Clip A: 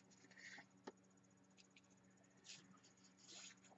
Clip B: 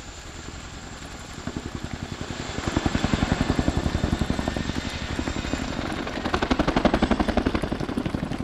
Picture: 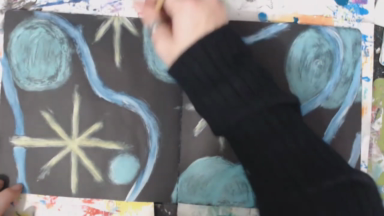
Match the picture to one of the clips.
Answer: A